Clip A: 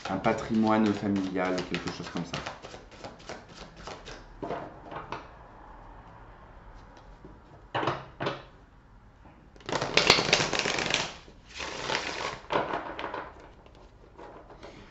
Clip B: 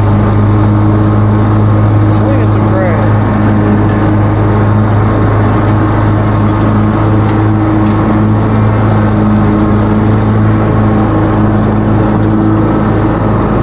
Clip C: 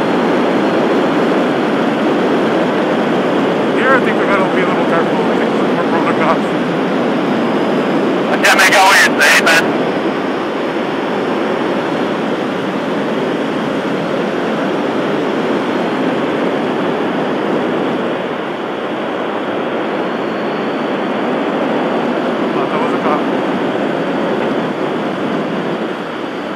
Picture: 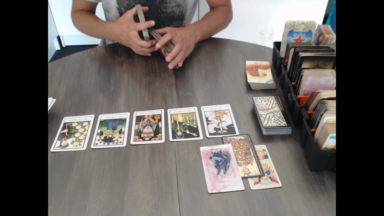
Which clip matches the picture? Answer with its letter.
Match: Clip A